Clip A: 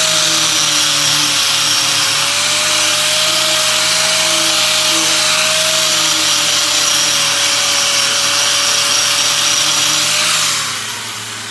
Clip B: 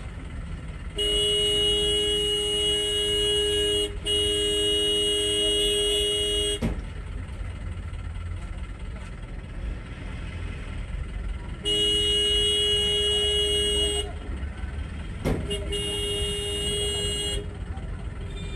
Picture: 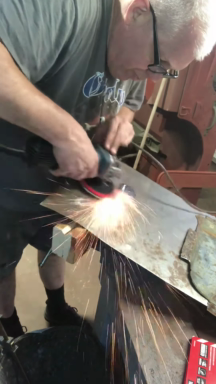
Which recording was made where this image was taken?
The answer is A